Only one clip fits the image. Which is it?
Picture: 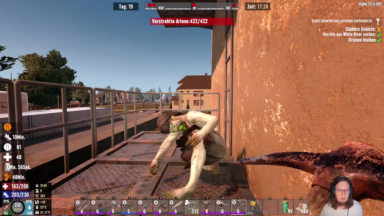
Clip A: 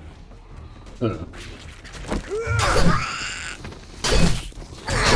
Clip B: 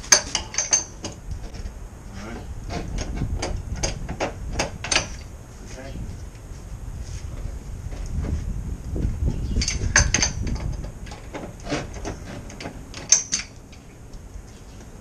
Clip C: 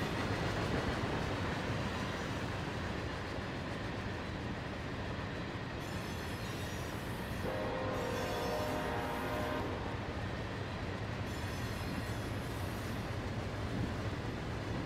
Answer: A